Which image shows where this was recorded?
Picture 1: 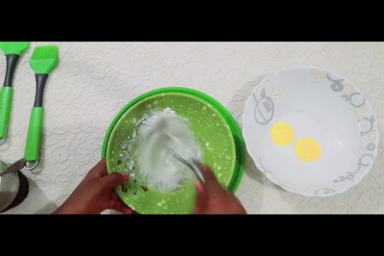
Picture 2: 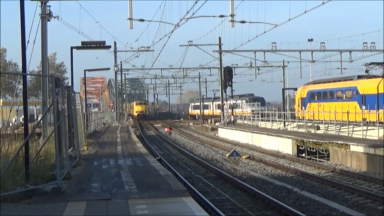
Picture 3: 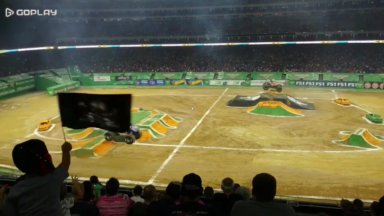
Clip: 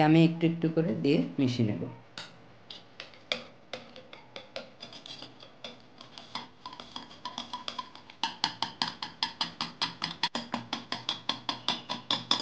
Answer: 1